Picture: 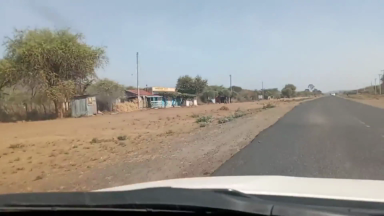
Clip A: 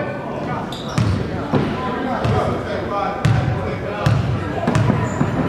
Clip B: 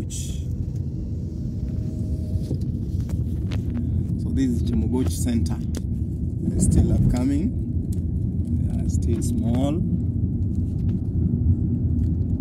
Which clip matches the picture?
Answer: B